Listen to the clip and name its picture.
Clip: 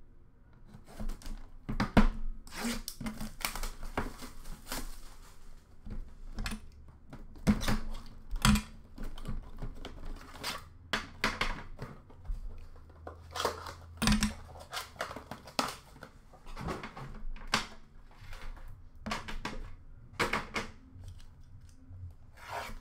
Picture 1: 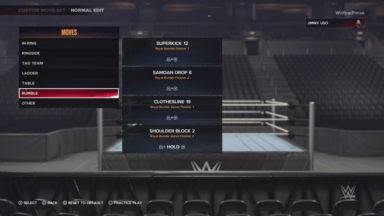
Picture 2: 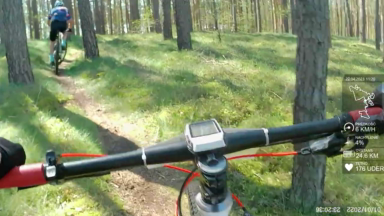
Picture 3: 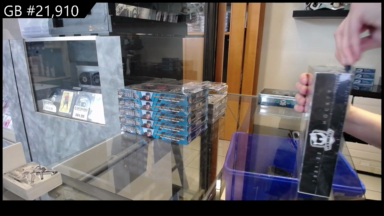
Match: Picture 3